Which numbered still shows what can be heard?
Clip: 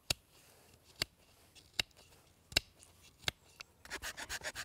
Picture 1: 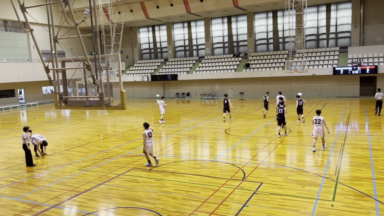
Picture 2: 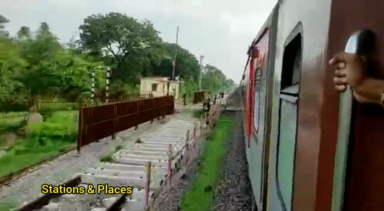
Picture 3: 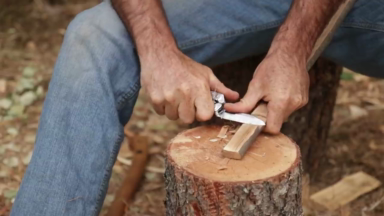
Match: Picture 3